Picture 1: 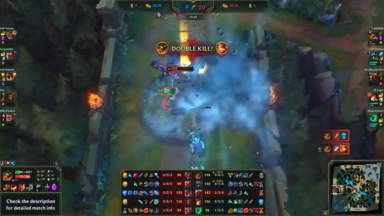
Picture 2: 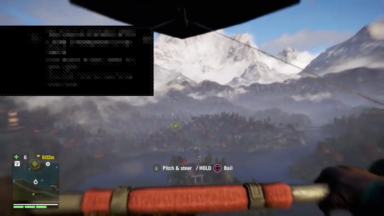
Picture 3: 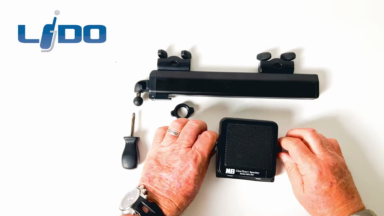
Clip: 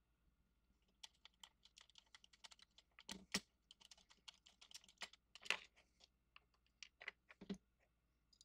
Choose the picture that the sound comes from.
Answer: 3